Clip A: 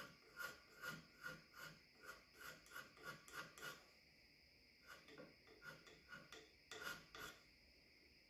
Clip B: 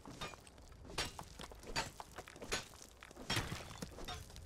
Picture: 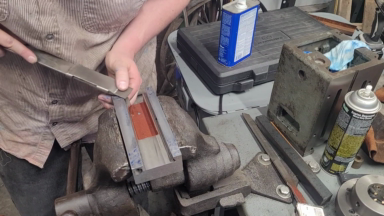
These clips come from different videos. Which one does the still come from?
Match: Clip A